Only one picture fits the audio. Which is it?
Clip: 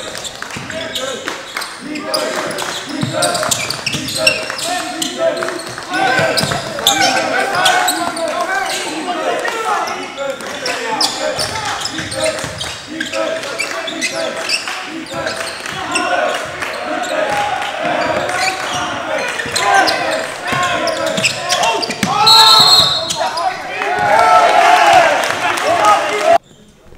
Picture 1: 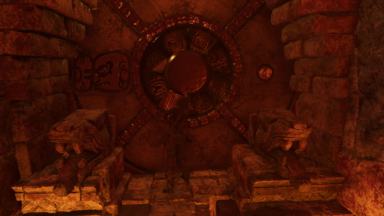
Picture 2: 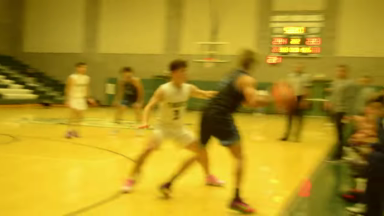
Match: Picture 2